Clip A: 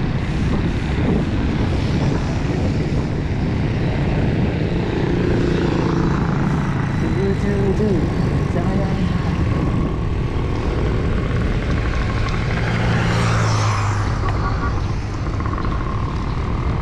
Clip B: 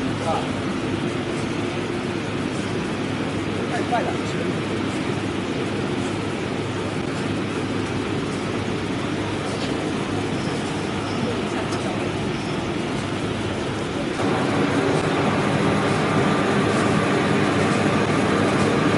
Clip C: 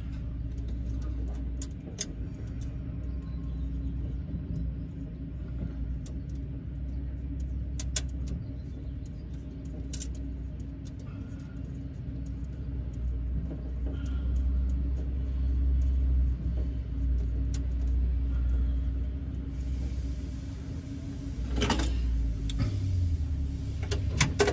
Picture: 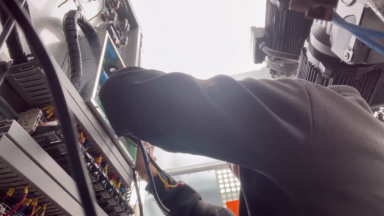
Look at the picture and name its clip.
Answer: C